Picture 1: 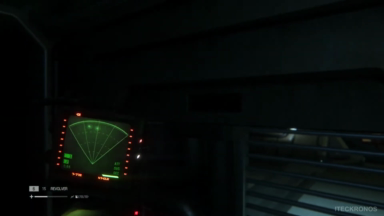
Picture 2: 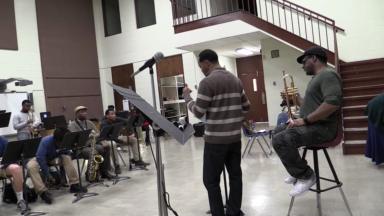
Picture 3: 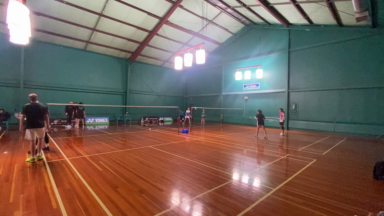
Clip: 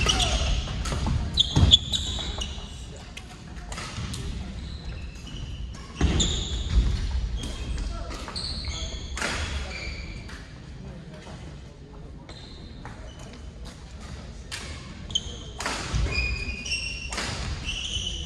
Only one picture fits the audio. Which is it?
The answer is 3